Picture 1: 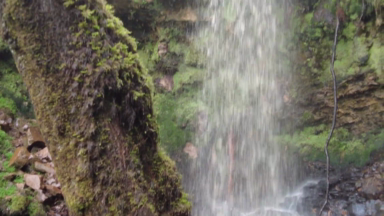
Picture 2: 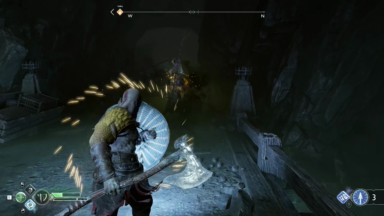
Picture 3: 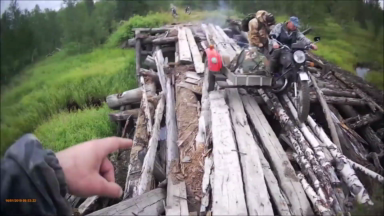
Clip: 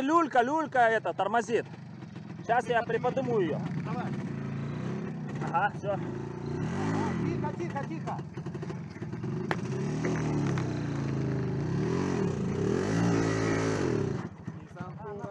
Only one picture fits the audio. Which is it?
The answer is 3